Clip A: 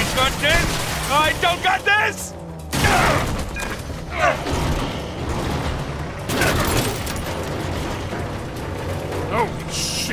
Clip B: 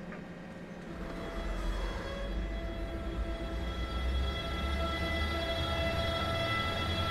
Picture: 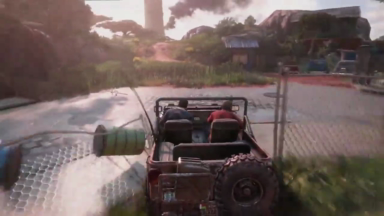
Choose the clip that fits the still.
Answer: A